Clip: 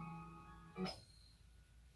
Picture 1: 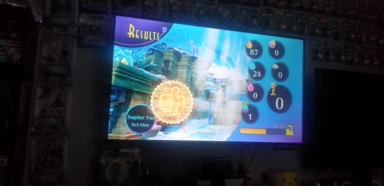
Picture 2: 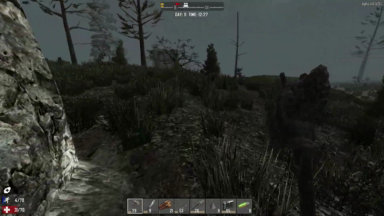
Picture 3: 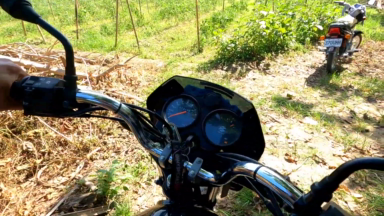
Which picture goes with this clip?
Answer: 1